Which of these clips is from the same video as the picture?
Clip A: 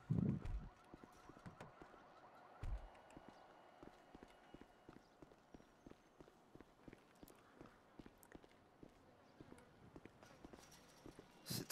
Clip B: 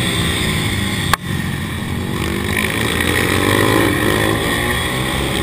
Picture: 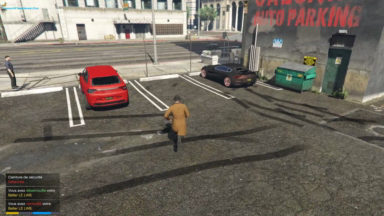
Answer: A